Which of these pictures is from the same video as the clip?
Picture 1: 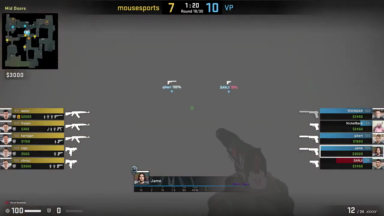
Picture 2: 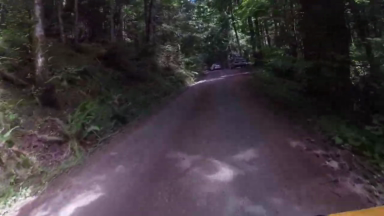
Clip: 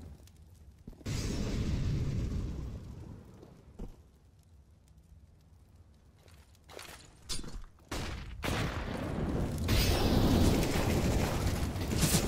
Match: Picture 1